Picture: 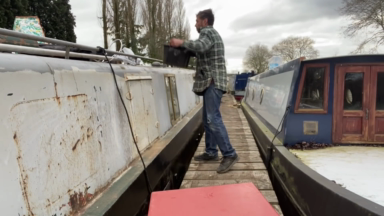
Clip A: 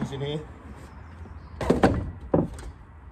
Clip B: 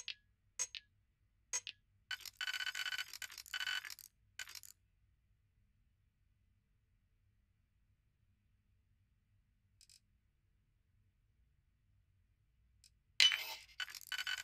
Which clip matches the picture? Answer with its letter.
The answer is A